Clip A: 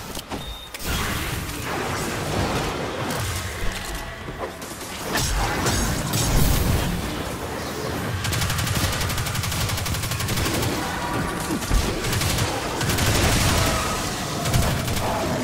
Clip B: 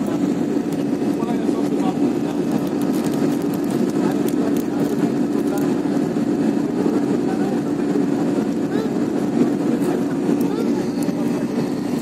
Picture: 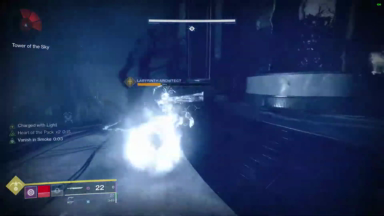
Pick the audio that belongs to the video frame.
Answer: A